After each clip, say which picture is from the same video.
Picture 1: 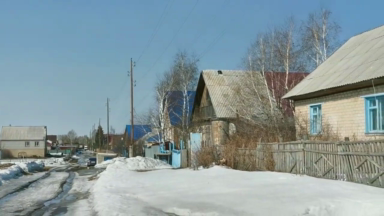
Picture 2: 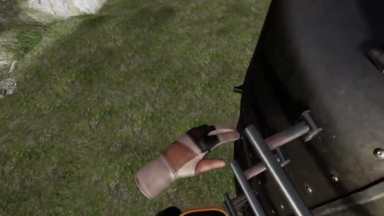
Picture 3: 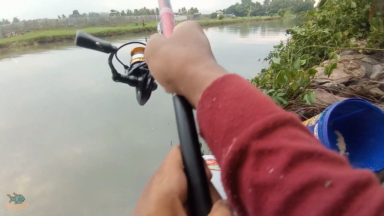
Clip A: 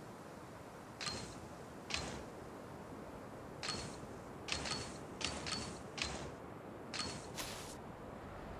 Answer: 2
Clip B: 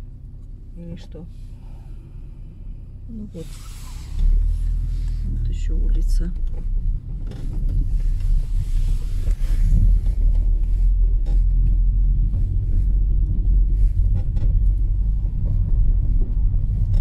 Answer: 1